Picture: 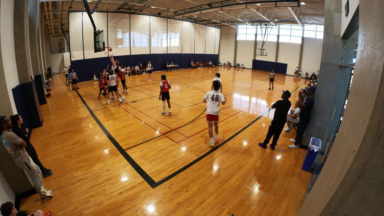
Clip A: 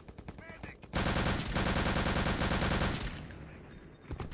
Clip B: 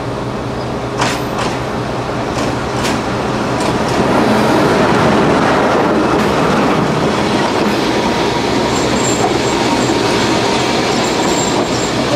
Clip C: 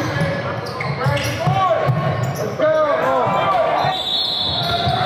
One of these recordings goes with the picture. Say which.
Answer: C